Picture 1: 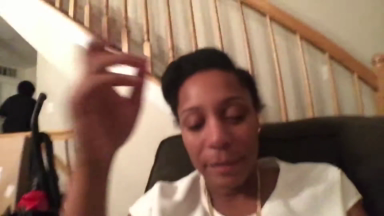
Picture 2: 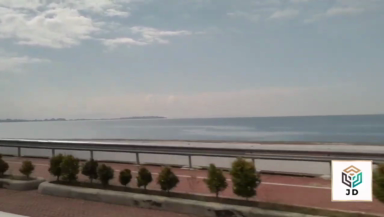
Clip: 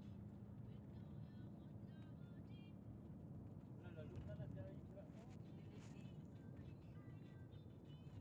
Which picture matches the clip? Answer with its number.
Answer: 2